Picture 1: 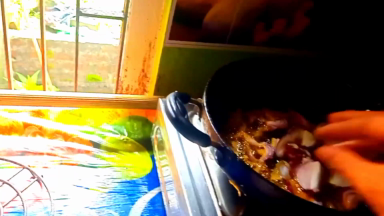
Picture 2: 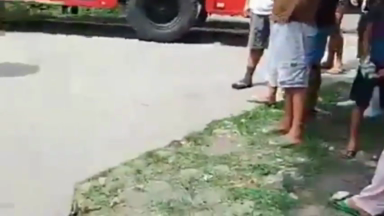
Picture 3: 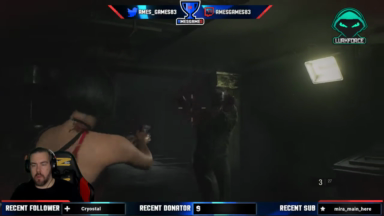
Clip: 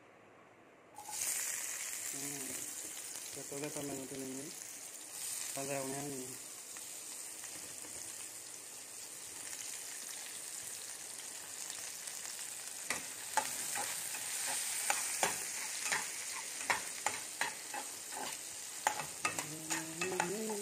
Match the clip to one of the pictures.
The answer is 1